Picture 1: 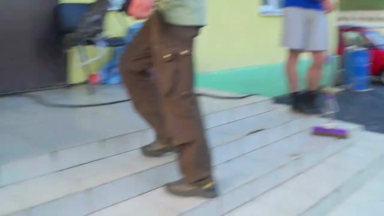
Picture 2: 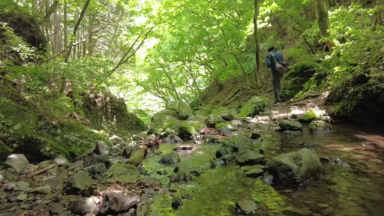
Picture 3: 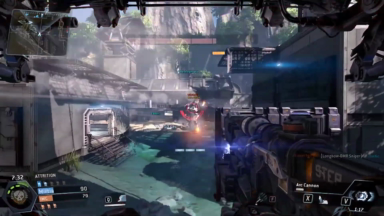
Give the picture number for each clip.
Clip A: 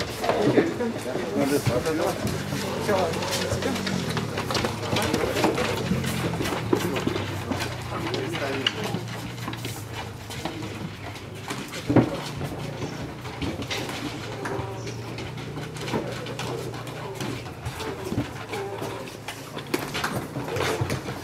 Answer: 1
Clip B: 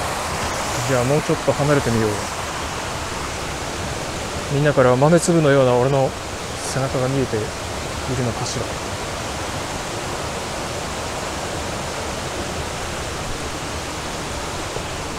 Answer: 2